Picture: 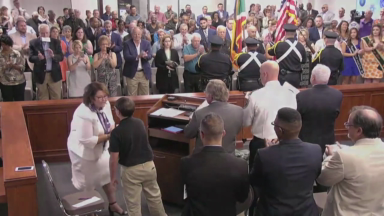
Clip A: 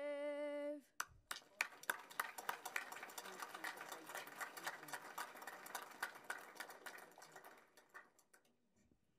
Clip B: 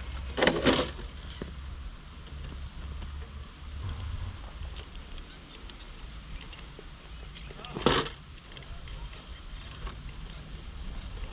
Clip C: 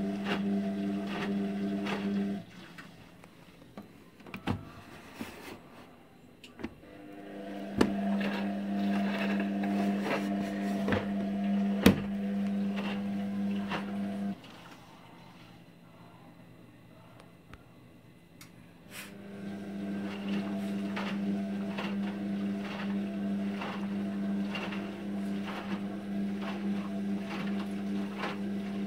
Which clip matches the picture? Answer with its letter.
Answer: A